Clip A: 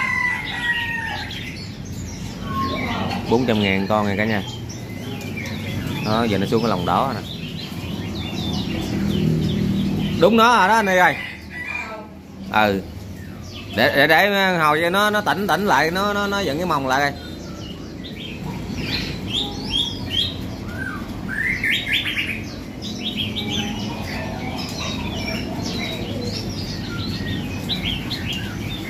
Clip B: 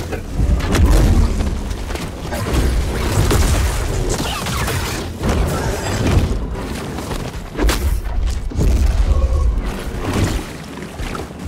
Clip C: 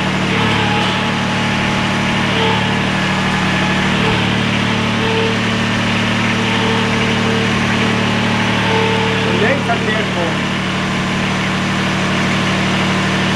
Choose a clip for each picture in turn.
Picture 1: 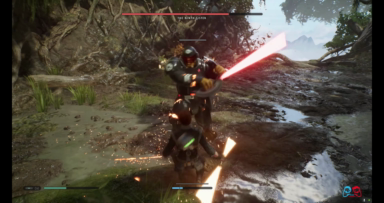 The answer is B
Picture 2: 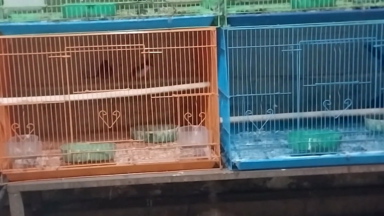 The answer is A